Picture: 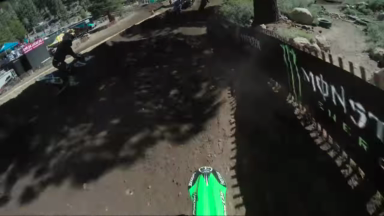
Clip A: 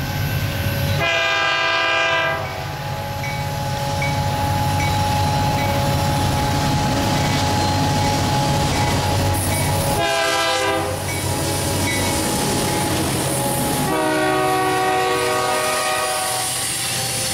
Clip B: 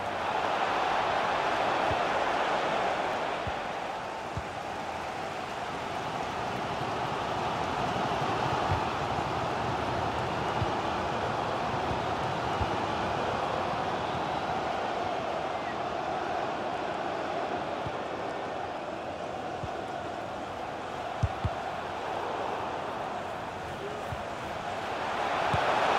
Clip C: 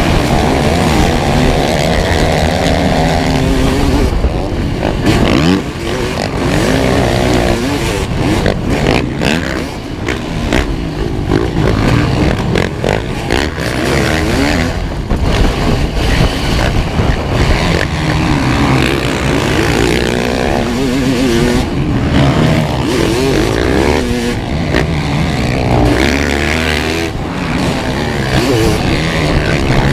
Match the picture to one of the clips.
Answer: C